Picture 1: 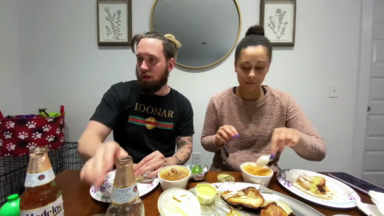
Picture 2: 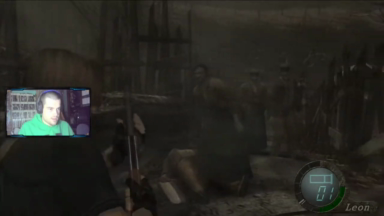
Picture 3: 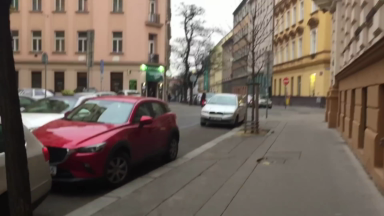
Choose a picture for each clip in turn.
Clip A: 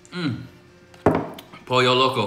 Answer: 1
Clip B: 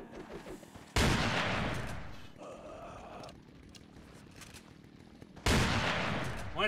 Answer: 2